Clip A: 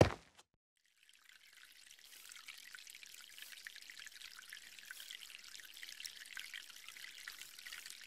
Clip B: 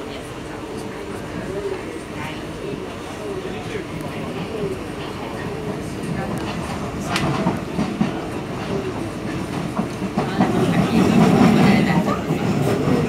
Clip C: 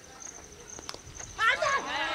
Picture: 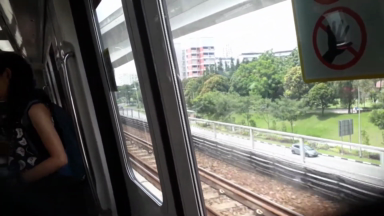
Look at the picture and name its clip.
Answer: B